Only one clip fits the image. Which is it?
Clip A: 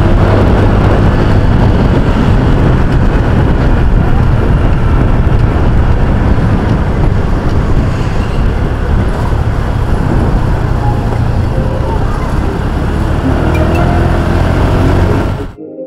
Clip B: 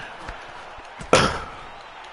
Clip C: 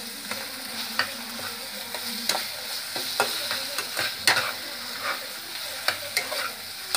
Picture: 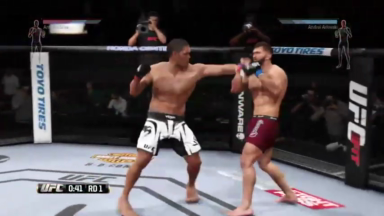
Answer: B